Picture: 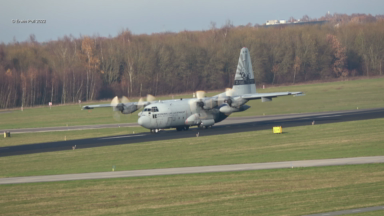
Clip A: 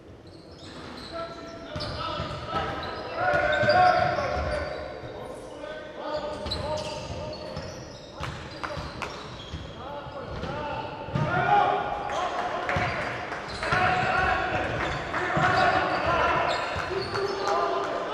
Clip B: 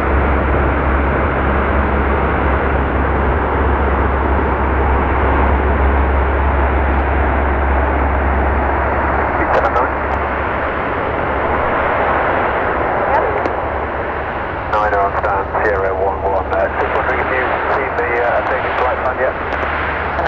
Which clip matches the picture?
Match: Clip B